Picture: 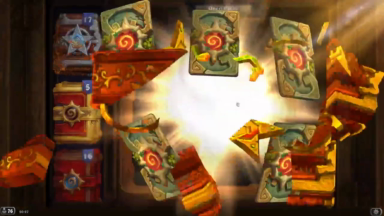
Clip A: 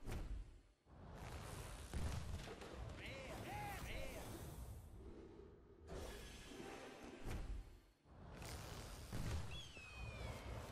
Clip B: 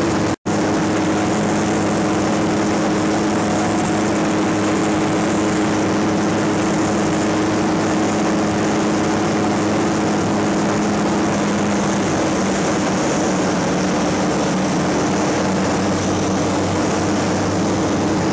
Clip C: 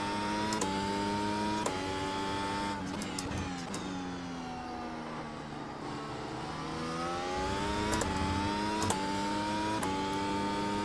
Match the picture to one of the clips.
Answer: A